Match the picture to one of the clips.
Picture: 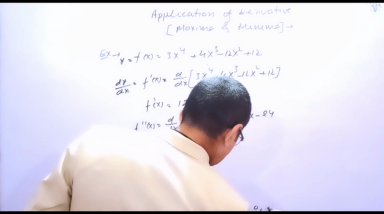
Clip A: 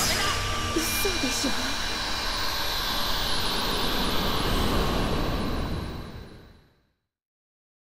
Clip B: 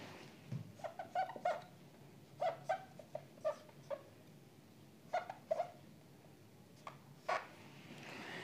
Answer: B